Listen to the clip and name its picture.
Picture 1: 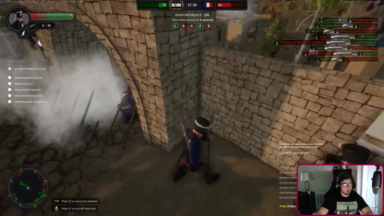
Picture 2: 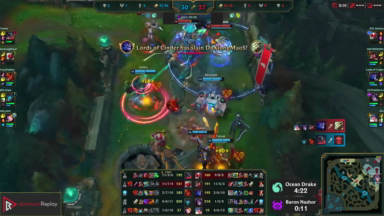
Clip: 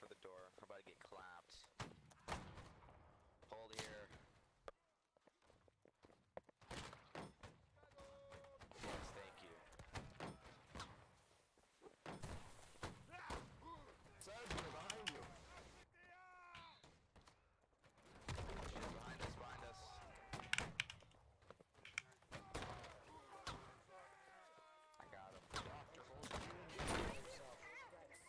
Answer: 1